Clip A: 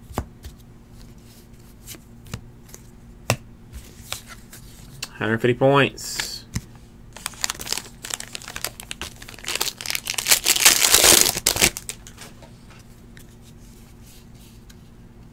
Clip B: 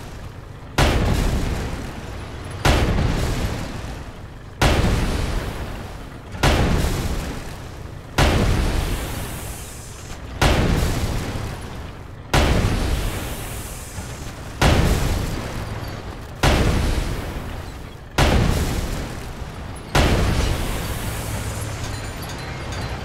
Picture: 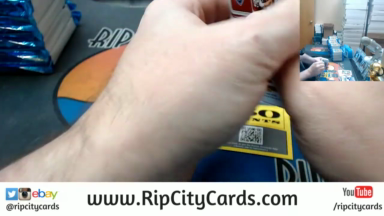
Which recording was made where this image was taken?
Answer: A